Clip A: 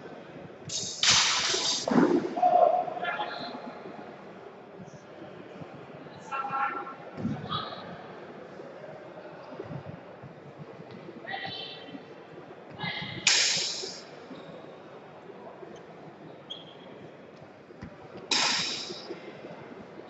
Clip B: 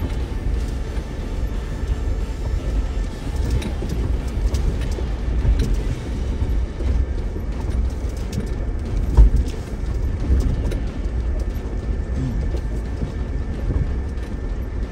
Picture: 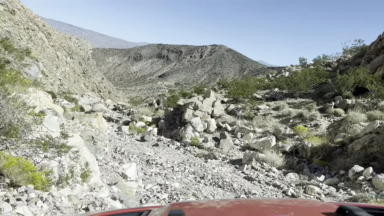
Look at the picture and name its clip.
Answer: B